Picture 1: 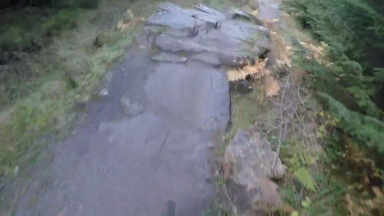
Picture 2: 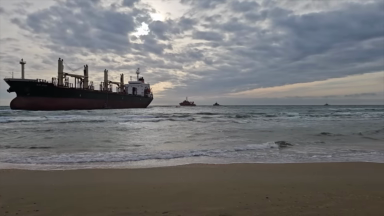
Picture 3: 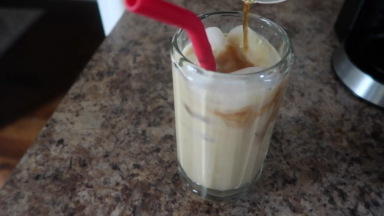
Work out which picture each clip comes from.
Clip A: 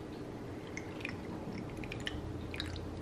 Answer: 3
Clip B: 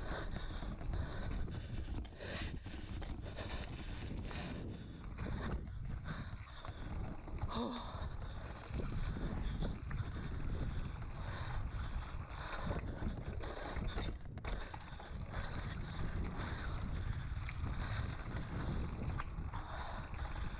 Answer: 1